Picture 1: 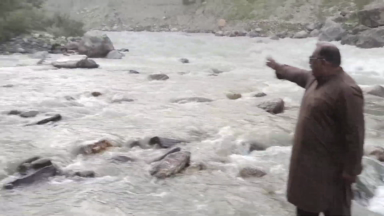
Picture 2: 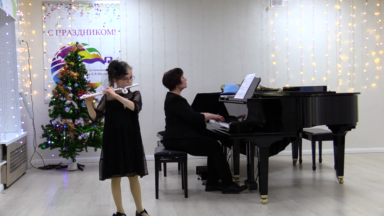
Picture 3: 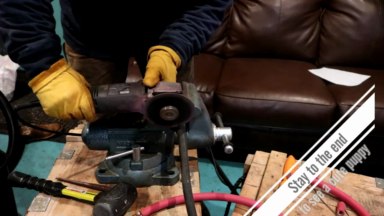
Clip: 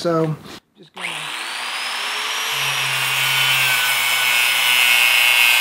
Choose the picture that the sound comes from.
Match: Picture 3